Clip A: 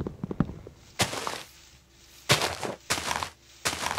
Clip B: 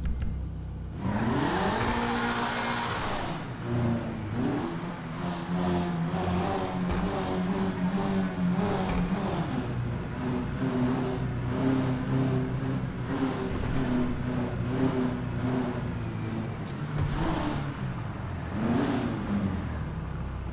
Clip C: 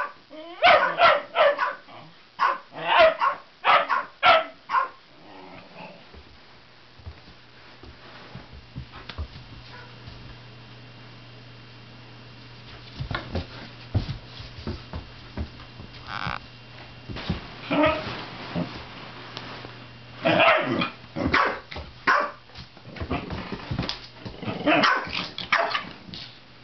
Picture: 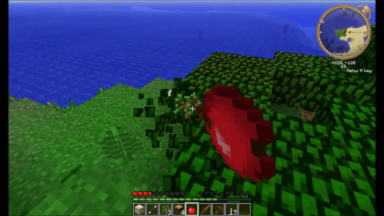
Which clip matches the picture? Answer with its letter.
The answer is A